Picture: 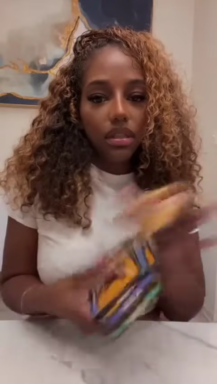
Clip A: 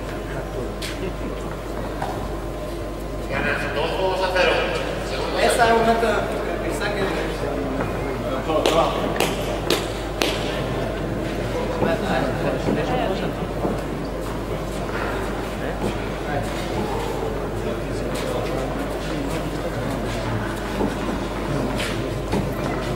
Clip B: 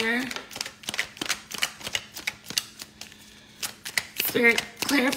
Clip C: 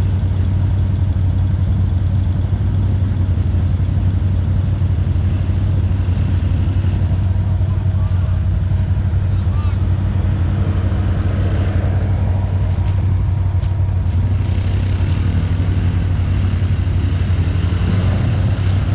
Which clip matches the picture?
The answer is B